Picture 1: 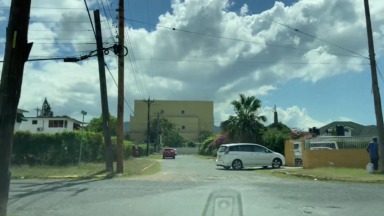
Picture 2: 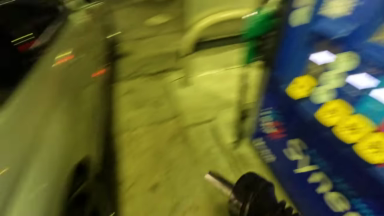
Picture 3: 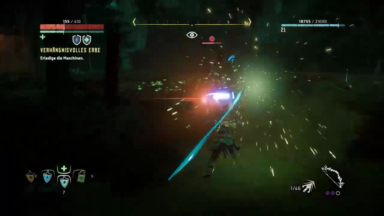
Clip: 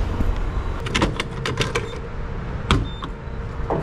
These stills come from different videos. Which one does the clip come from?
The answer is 2